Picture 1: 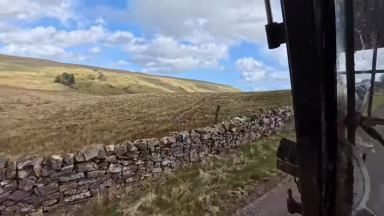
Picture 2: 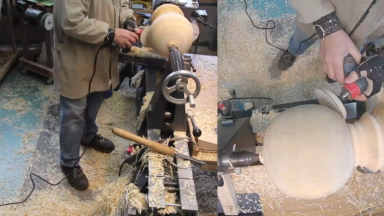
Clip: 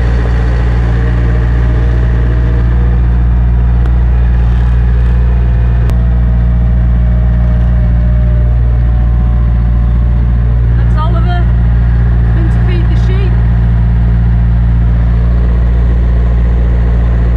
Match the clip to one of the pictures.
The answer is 1